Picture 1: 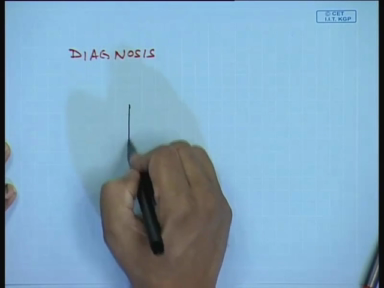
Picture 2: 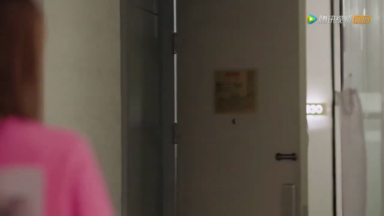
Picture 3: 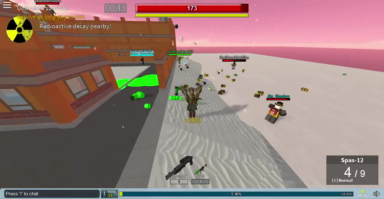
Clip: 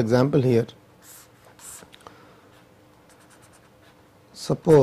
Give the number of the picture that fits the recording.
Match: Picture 1